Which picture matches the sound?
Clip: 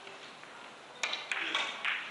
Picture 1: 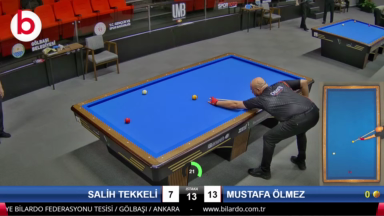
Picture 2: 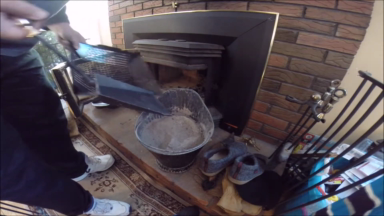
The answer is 1